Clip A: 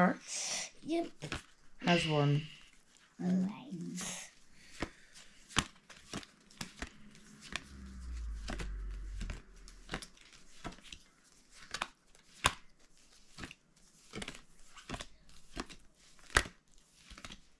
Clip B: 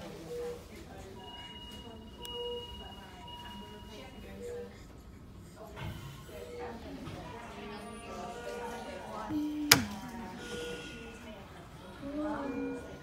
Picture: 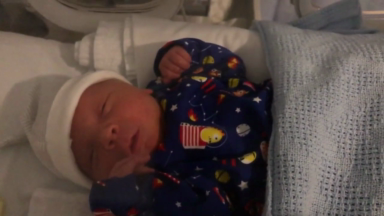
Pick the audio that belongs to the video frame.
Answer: B